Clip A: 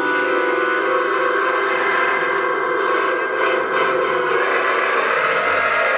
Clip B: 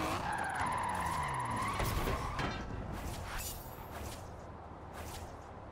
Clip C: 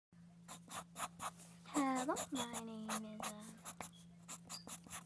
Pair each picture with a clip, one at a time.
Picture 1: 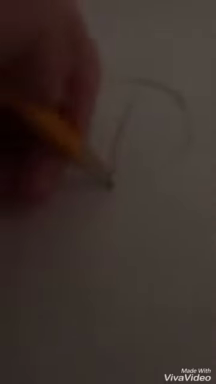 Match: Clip C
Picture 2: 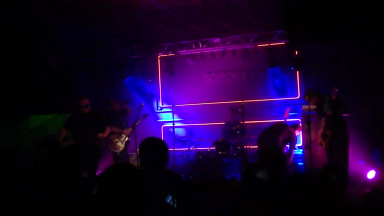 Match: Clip A